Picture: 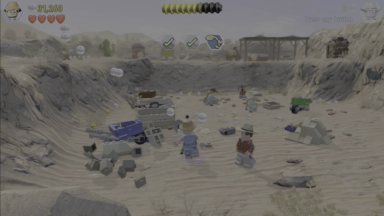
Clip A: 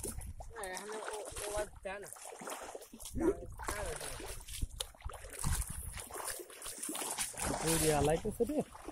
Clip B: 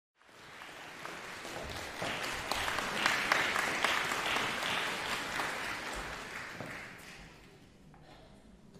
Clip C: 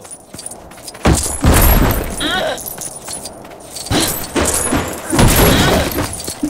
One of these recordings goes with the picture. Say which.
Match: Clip C